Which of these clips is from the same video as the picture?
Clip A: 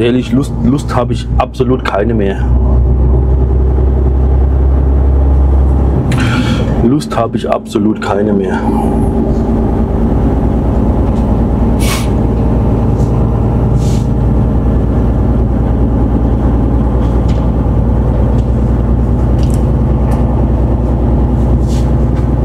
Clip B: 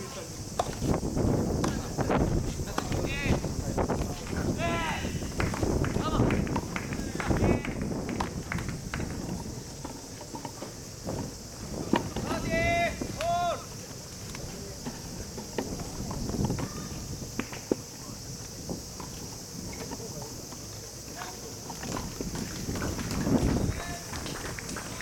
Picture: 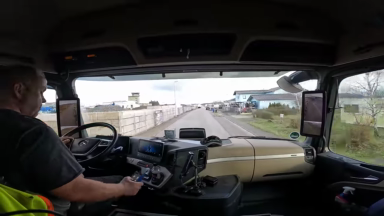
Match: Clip A